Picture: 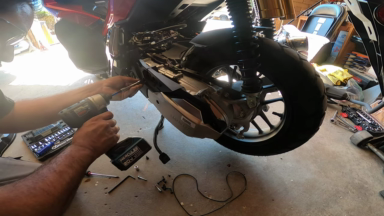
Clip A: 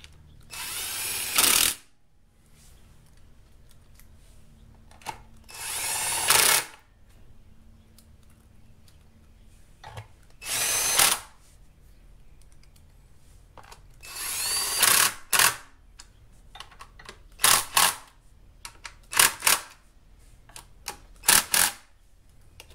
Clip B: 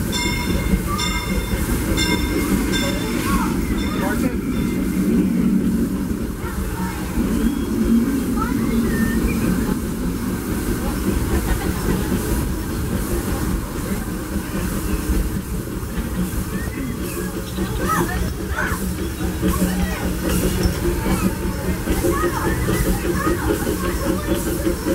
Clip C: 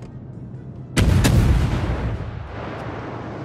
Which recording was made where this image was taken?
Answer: A